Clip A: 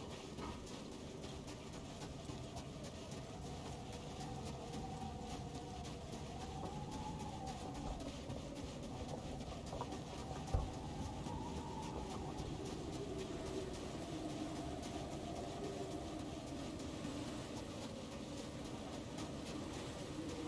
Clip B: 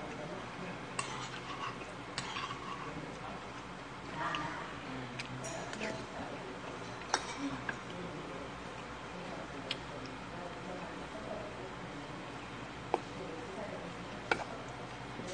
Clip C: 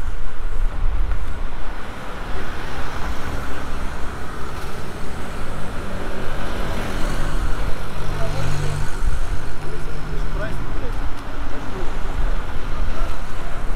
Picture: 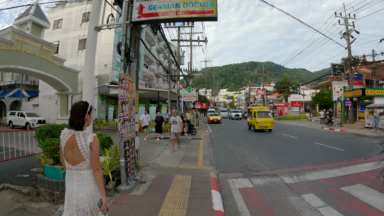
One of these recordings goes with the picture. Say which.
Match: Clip C